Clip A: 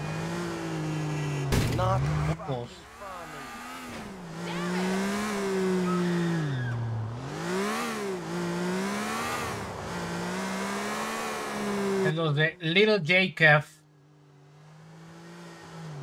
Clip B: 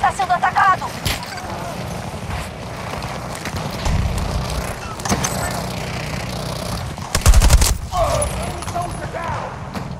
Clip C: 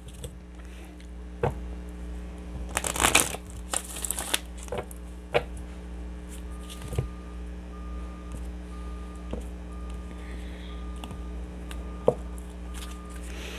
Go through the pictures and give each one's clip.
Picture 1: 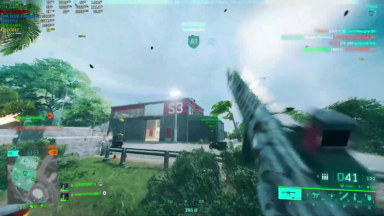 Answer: B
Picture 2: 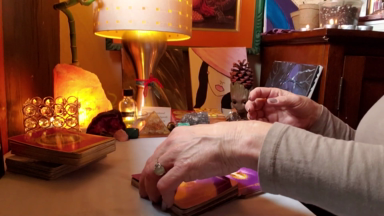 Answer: C